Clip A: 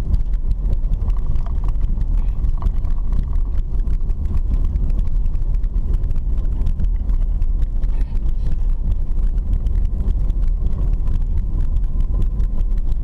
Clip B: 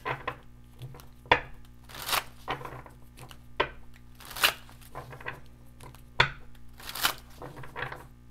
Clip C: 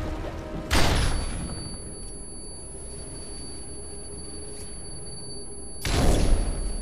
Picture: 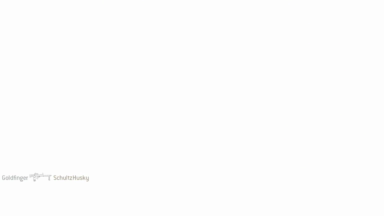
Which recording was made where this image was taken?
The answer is C